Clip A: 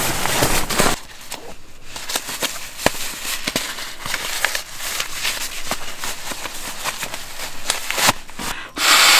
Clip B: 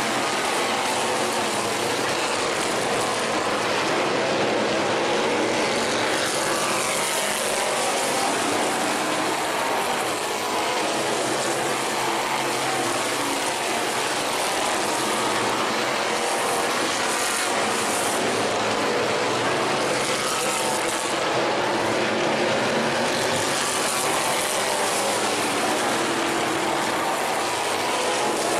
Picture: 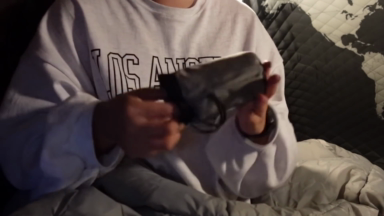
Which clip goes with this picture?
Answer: A